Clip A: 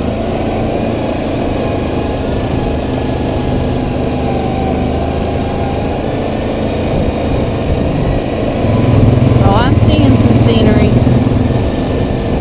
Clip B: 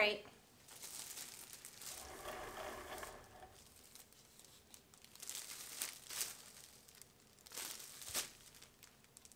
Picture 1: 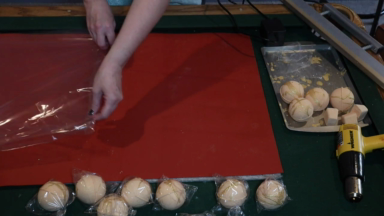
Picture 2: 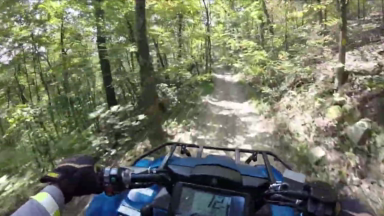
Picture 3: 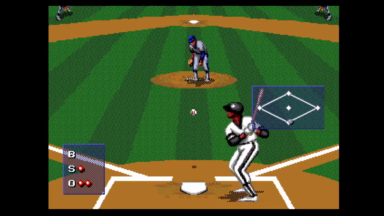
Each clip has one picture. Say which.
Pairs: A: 2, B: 1